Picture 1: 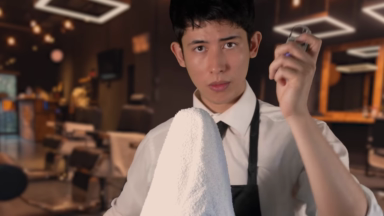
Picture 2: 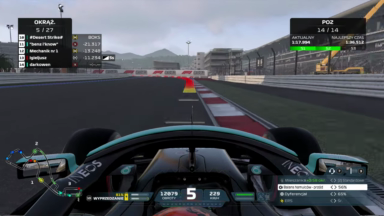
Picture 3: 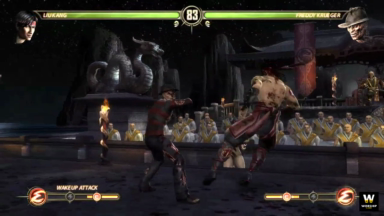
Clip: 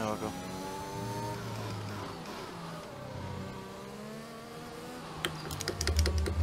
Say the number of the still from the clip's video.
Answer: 2